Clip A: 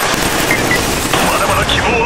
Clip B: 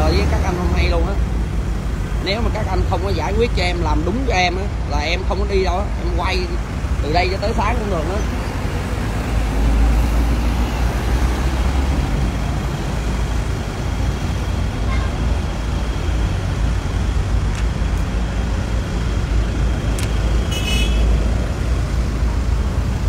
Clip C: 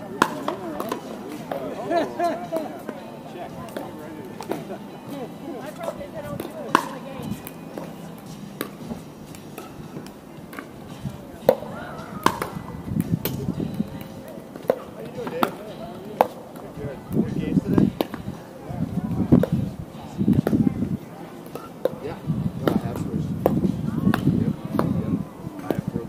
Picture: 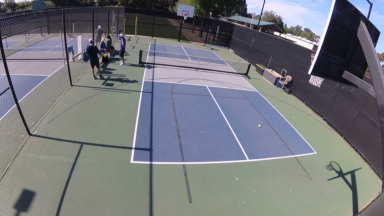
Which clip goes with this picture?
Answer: C